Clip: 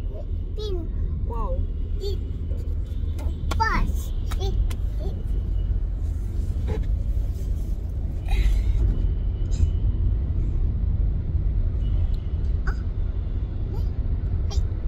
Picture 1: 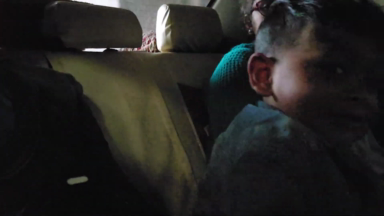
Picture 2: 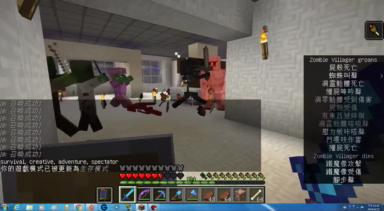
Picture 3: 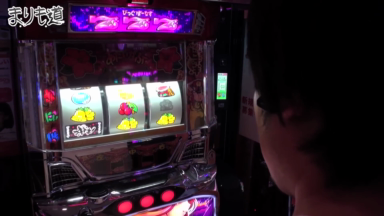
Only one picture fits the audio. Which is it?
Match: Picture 1